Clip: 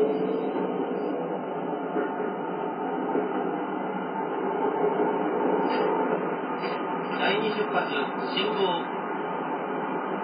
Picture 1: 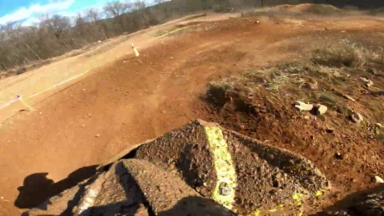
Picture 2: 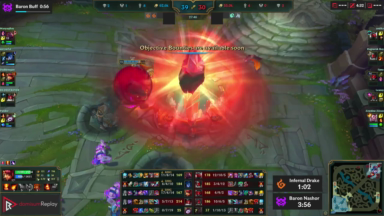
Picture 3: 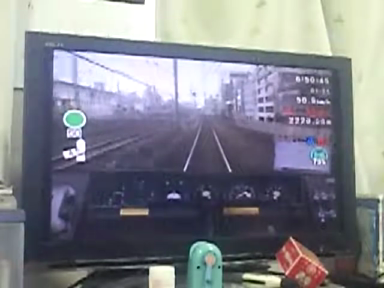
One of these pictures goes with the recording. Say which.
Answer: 3